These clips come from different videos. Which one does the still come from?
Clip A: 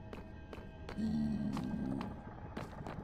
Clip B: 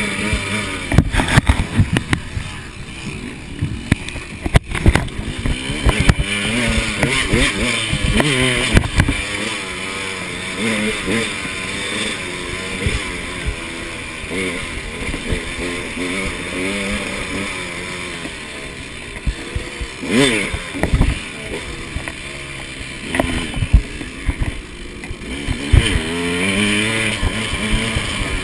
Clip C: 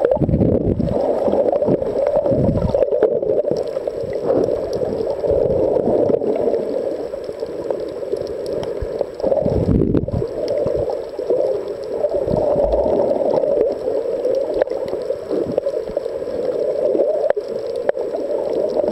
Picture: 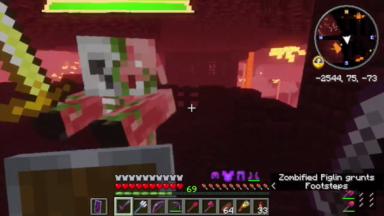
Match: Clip A